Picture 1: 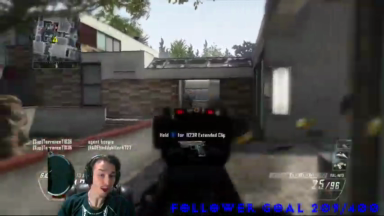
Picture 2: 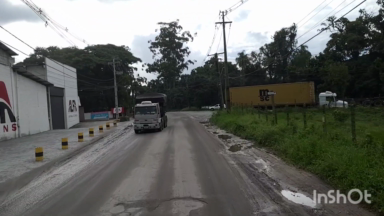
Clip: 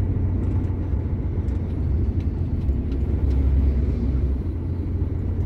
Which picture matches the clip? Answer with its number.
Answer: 2